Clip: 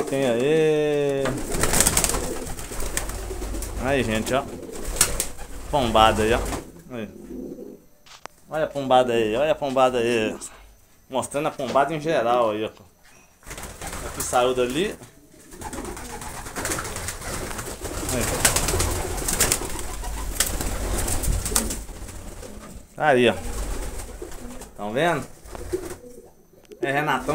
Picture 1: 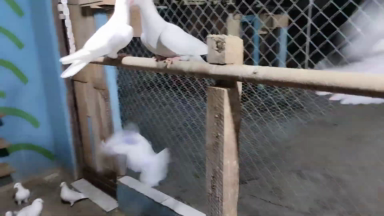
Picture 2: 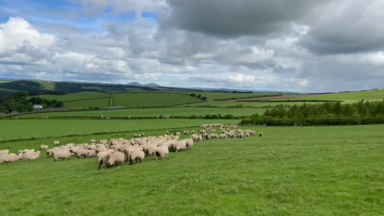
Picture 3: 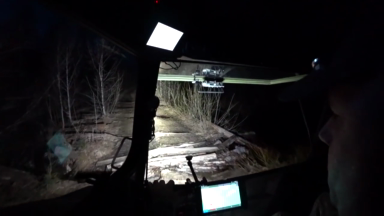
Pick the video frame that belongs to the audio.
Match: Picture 1